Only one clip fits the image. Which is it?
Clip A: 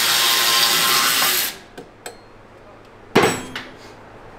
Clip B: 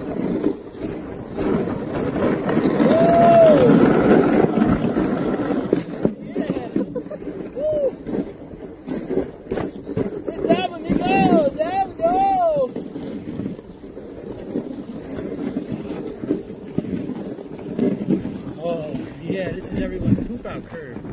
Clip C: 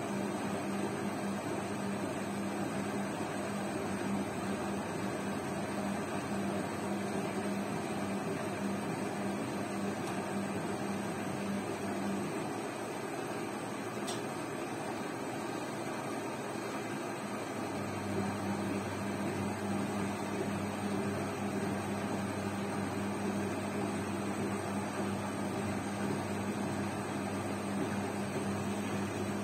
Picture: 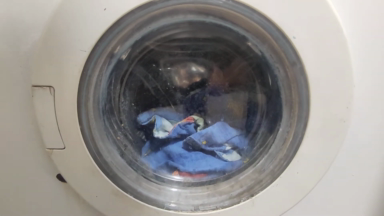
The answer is C